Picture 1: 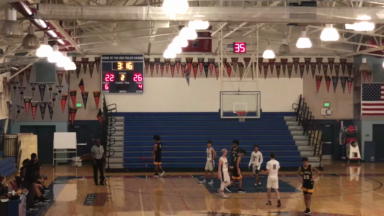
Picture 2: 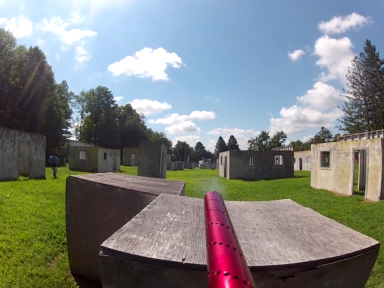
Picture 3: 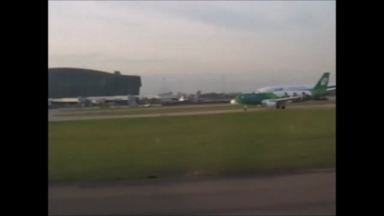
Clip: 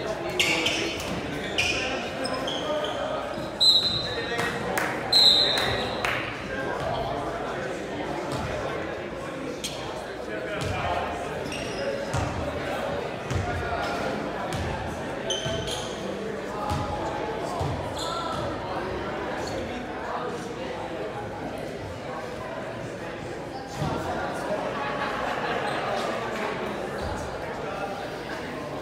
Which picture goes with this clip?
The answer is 1